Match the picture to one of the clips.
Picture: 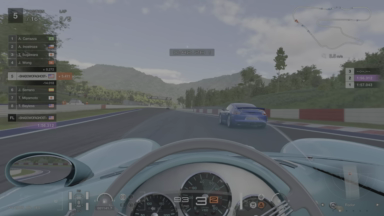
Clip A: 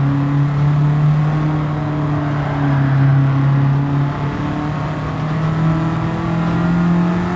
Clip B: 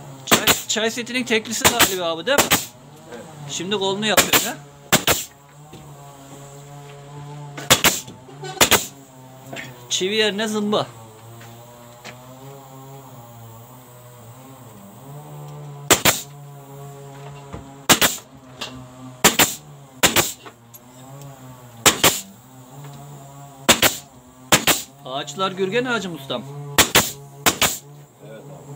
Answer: A